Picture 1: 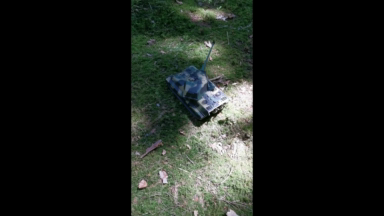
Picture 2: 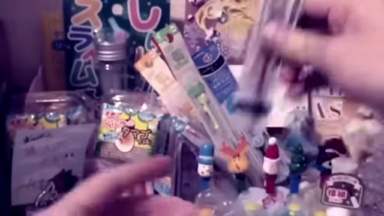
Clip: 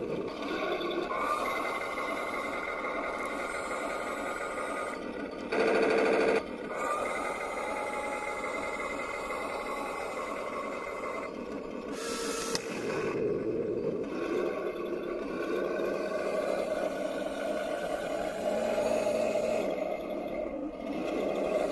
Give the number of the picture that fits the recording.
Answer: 1